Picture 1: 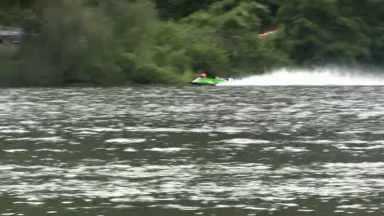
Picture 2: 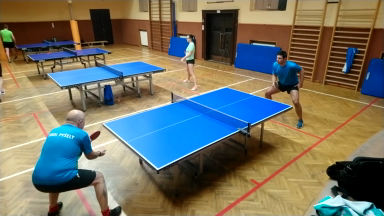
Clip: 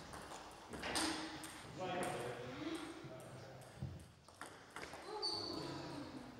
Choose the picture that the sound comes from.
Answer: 2